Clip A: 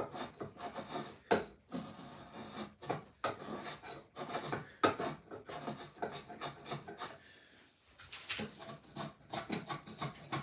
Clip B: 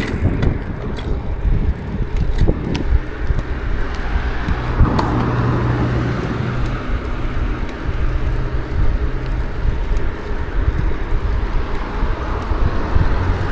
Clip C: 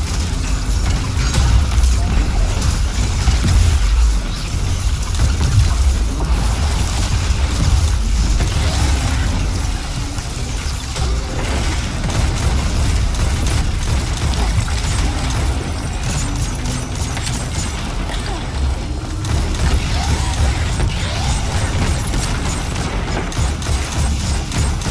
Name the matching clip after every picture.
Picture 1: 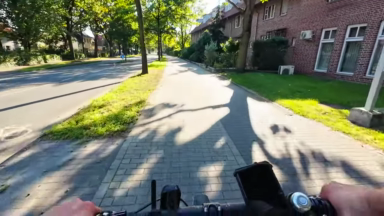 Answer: B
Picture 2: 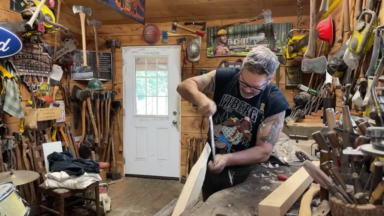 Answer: A